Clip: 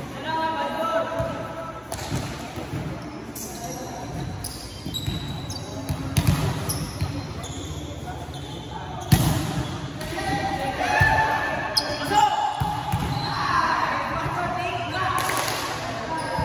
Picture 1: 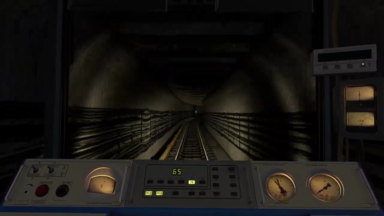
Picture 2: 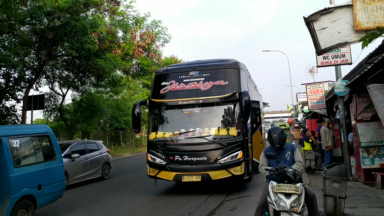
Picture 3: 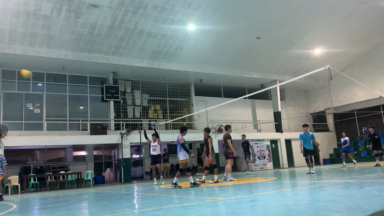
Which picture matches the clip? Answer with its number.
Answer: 3